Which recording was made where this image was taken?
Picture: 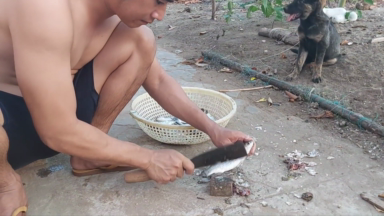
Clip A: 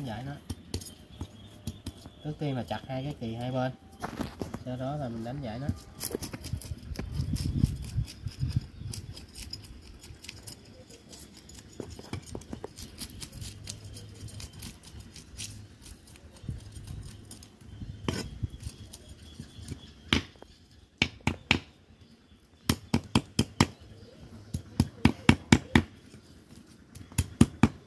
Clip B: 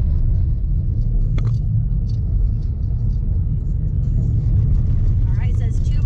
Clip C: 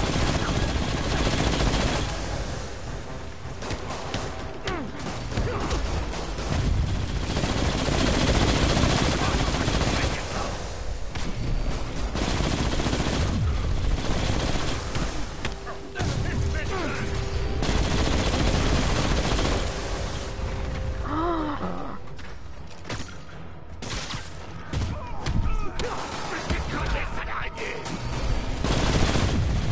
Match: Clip A